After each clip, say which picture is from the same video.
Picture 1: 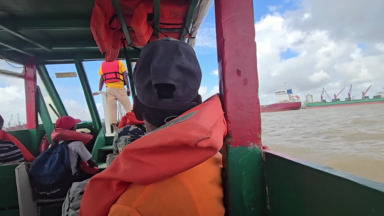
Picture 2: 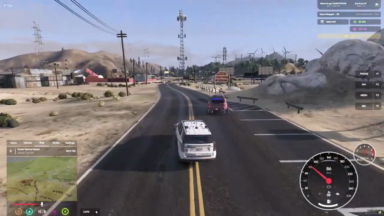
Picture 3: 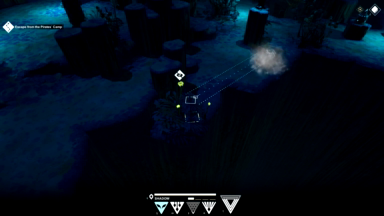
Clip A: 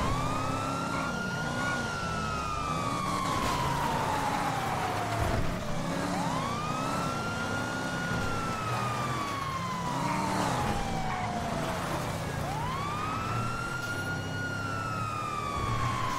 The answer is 2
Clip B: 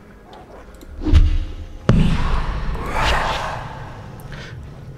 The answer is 3